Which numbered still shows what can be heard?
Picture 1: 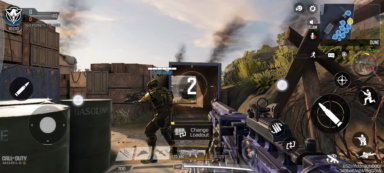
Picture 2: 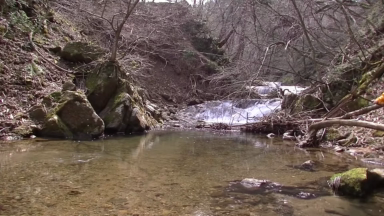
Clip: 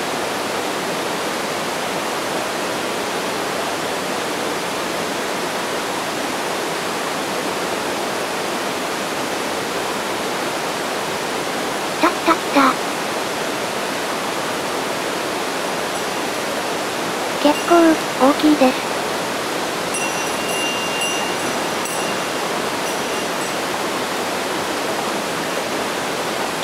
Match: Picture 2